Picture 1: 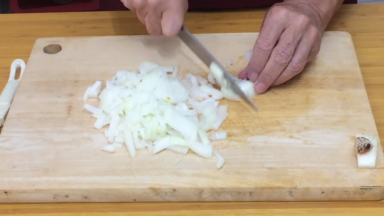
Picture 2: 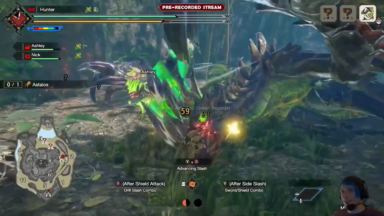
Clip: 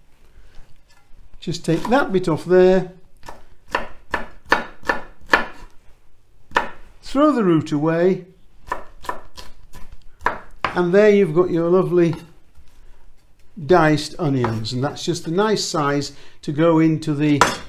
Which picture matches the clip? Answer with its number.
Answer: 1